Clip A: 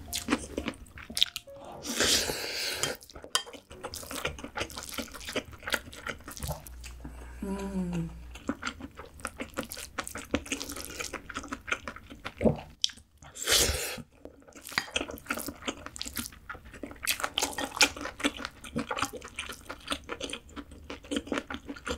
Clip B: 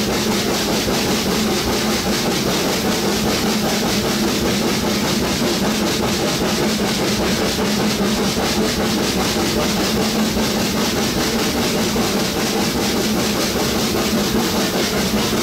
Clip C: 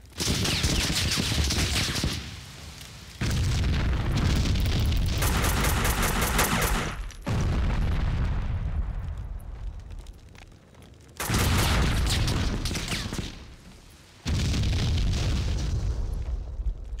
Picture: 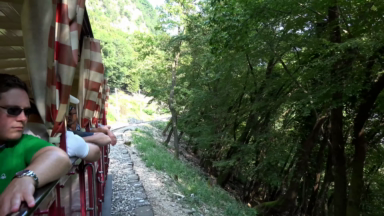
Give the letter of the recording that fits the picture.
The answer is B